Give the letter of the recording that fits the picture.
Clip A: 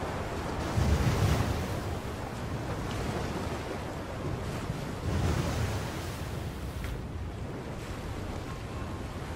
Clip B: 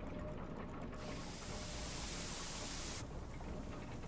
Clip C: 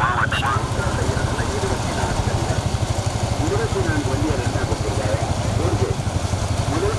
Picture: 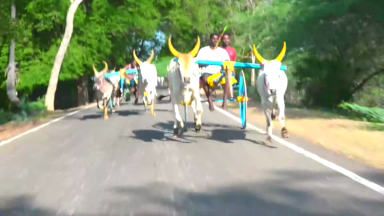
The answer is C